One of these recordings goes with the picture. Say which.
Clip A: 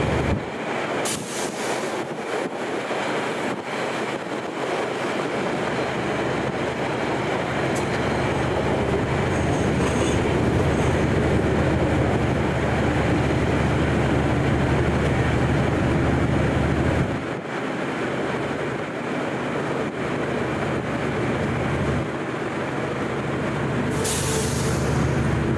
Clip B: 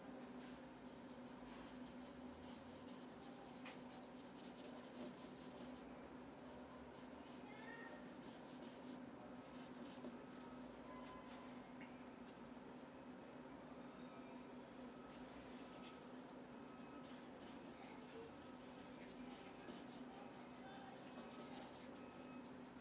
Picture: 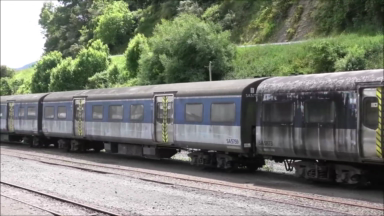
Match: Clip A